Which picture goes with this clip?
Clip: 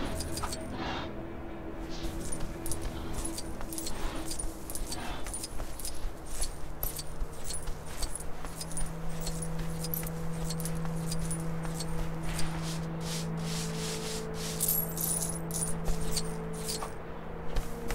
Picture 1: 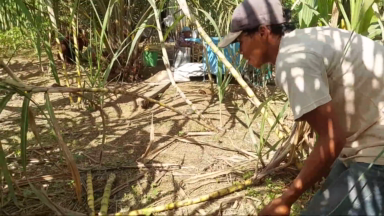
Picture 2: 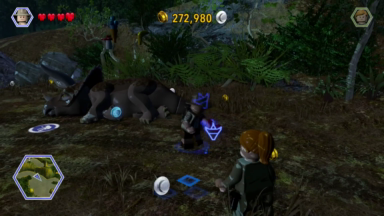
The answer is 2